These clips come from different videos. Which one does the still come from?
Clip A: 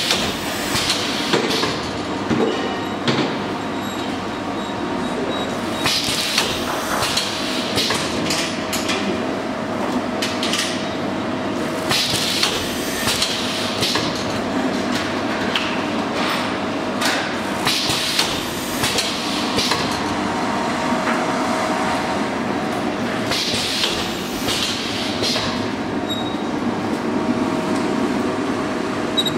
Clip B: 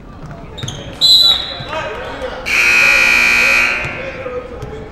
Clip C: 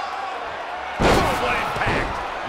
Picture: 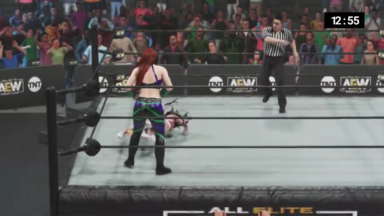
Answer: C